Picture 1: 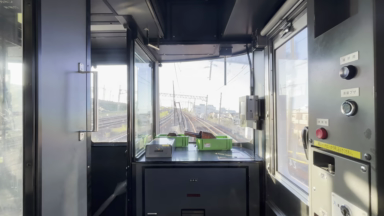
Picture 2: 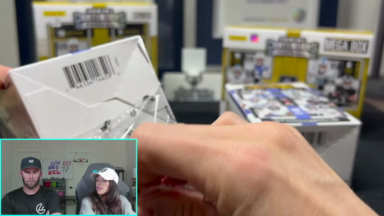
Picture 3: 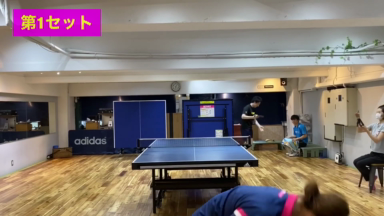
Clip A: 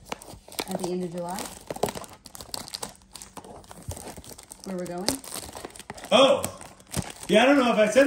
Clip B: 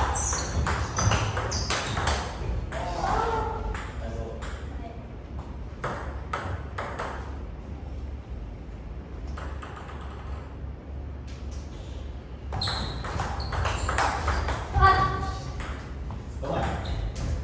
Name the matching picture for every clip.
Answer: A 2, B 3